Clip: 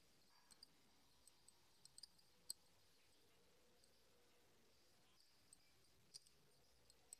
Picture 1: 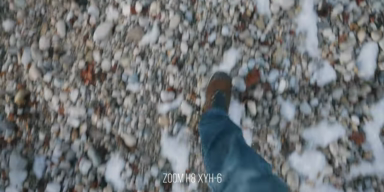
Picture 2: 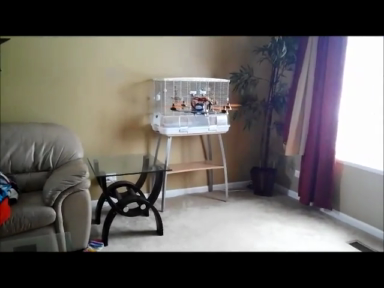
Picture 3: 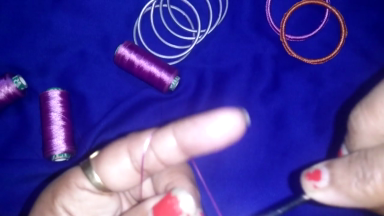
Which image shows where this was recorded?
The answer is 3